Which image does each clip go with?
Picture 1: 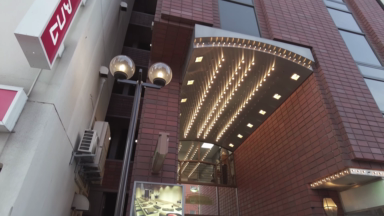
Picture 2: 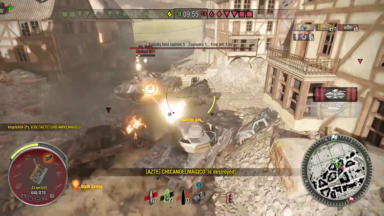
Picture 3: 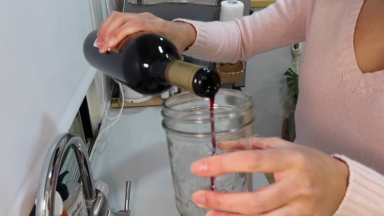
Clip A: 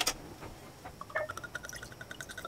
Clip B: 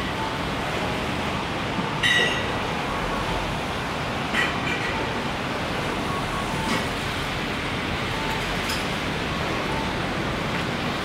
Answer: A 3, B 1